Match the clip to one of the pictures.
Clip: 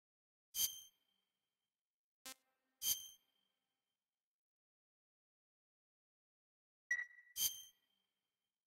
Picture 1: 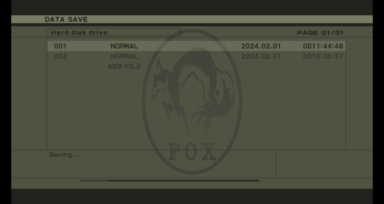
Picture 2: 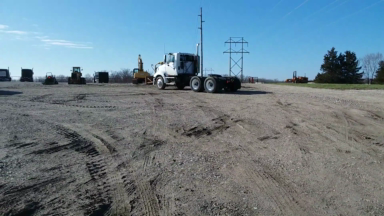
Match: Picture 1